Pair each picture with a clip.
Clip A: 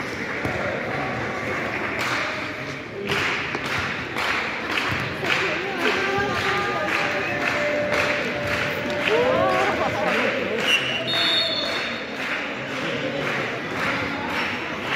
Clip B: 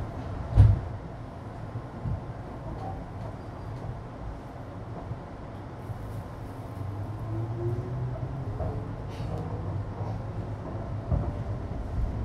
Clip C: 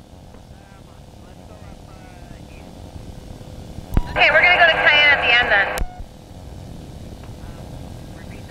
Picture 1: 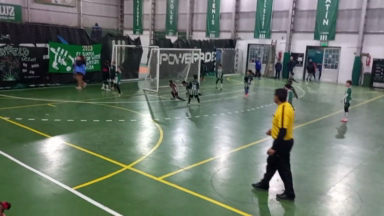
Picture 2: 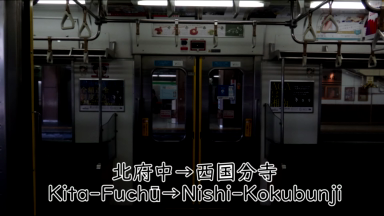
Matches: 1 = A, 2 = B